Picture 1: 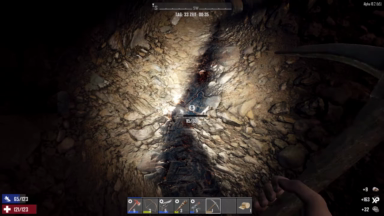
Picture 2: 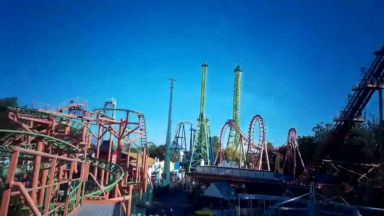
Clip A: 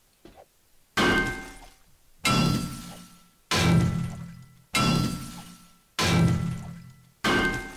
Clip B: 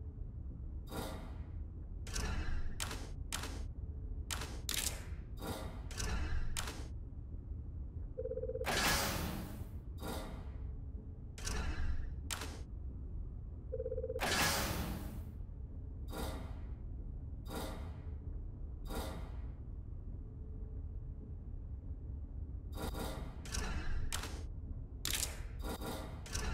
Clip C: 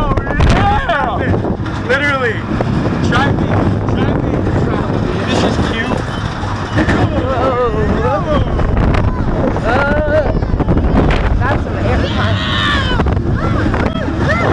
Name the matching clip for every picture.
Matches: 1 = A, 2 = C